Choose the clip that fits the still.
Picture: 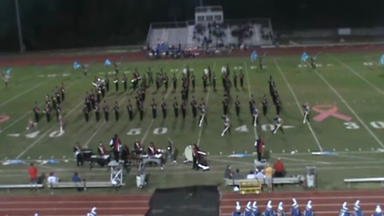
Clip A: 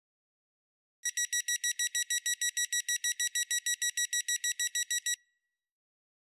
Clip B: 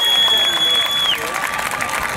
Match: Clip B